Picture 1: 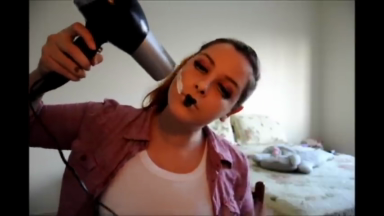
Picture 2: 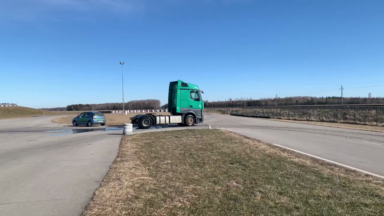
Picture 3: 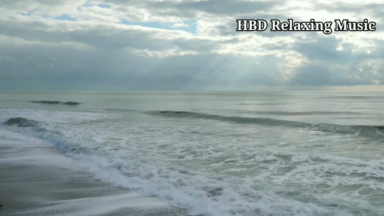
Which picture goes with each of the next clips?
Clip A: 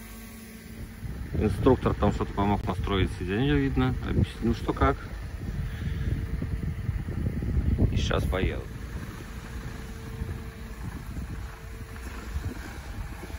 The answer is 2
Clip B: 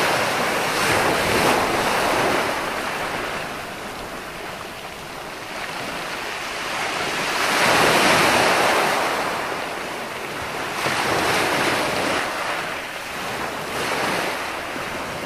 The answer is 3